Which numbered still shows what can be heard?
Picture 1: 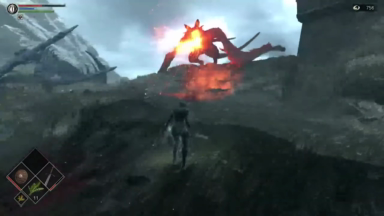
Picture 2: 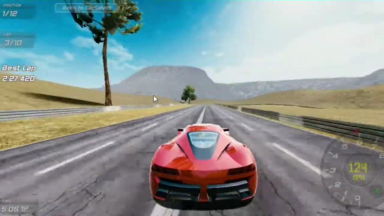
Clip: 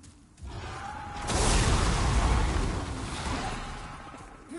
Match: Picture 1